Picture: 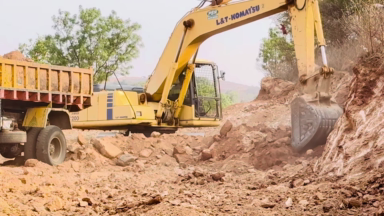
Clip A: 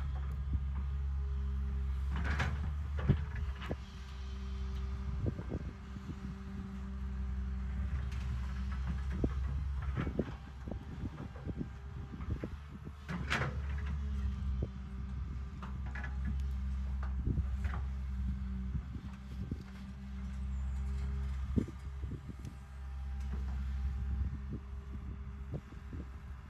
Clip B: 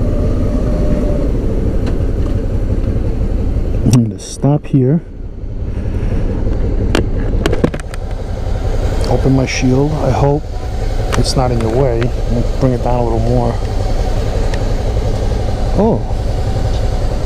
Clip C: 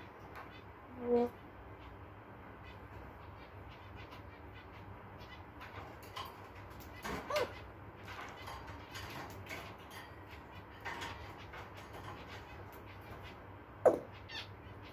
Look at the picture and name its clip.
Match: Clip A